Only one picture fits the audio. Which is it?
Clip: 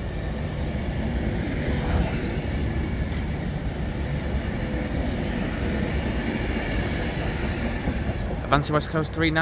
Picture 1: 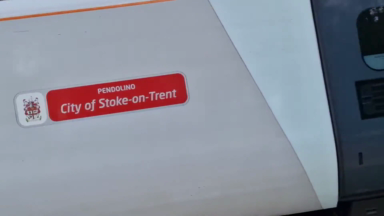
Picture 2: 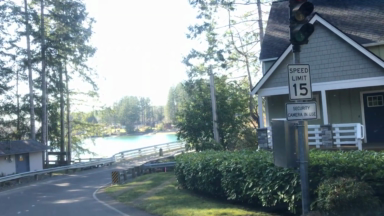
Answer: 1